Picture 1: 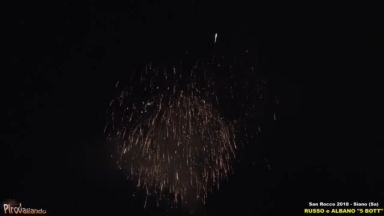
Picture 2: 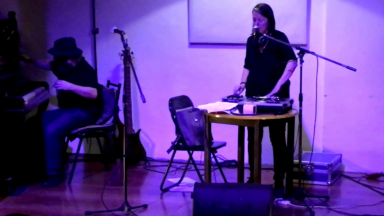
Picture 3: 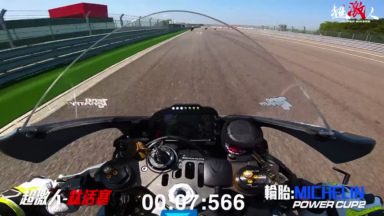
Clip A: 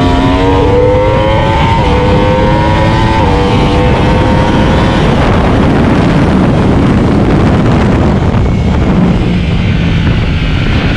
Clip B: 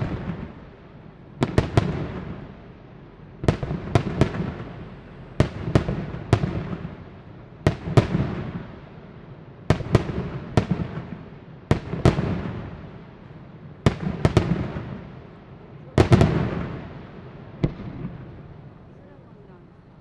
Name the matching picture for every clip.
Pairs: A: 3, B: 1